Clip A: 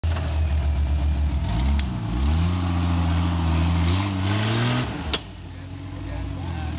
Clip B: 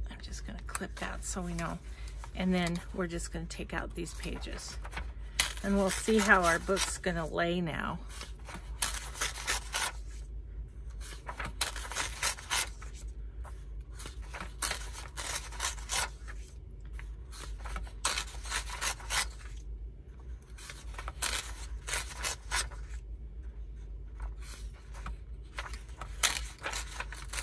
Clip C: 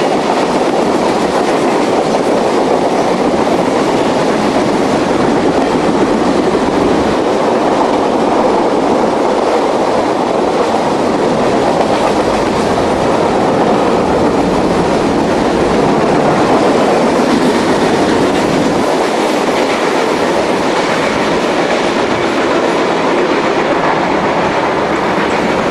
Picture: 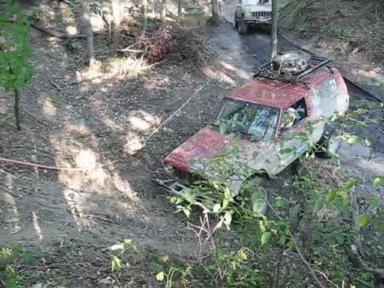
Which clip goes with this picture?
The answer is A